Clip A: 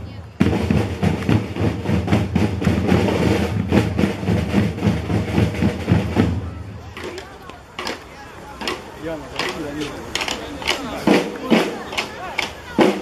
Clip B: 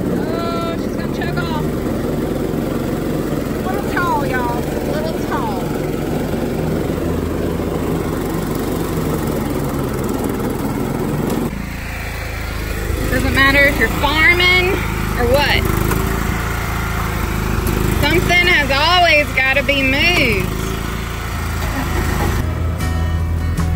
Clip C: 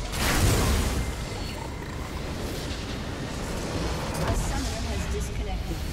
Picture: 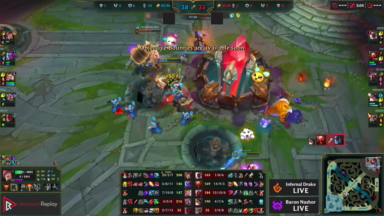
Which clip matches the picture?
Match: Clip C